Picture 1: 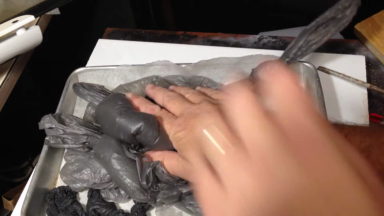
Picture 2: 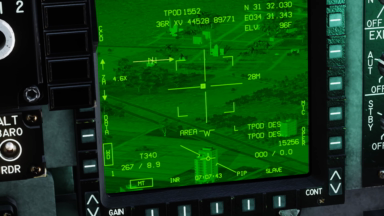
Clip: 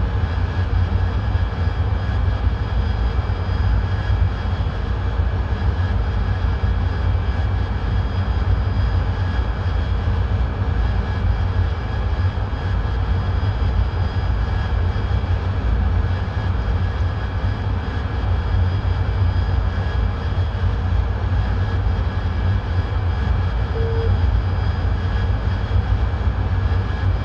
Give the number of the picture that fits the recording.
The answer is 2